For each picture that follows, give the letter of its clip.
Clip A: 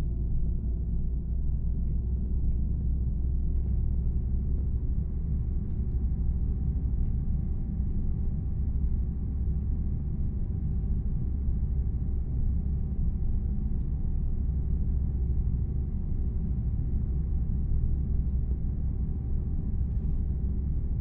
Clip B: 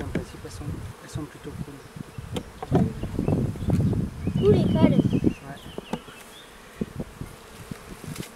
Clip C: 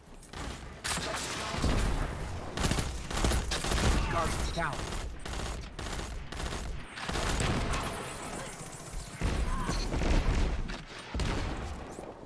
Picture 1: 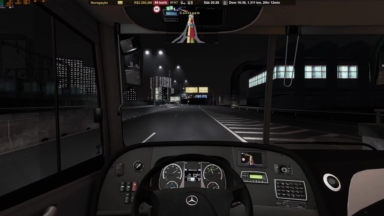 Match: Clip A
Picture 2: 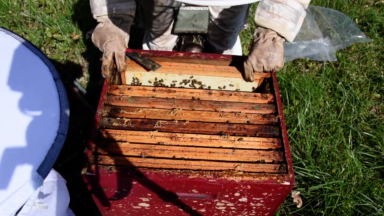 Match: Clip B